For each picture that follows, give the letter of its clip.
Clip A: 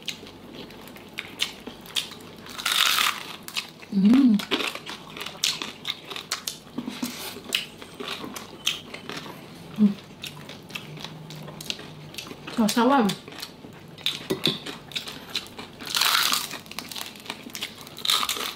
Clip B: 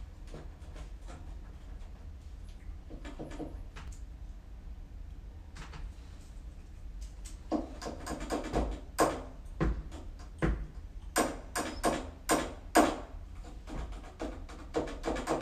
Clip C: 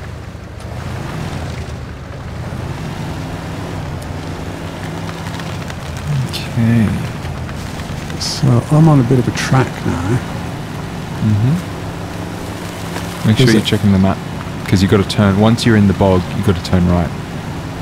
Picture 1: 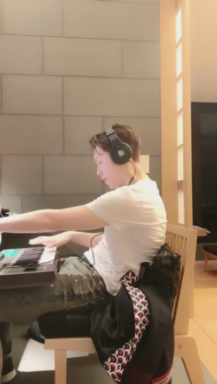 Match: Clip B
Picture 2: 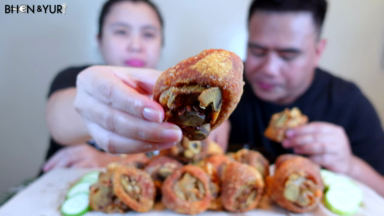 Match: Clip A